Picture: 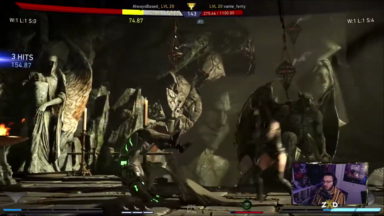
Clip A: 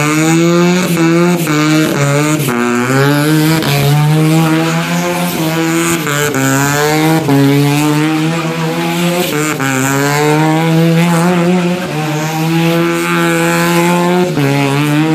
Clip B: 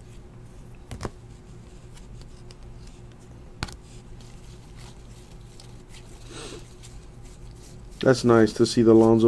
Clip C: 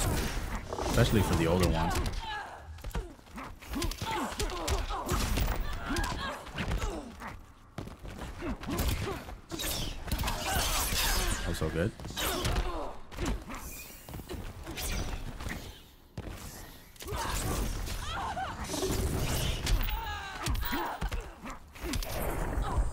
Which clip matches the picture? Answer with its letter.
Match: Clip C